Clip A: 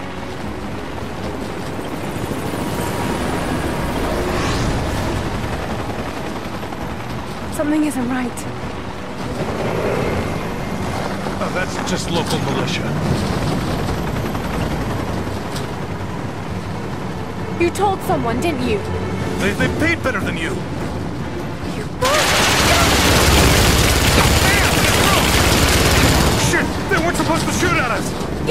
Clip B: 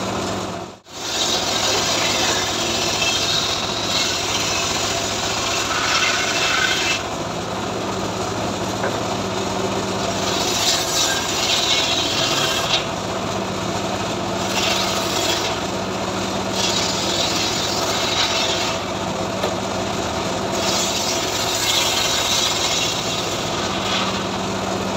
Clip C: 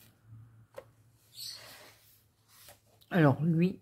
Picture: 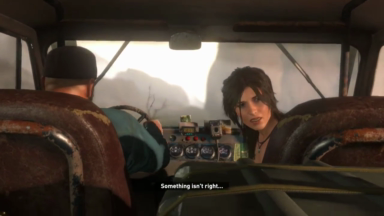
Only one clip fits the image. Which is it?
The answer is A